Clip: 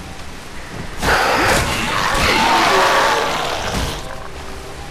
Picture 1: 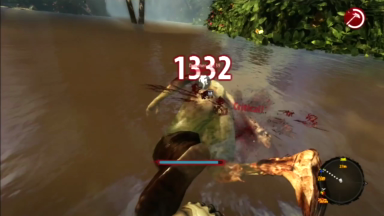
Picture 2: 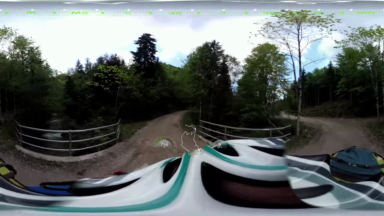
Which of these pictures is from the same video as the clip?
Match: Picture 1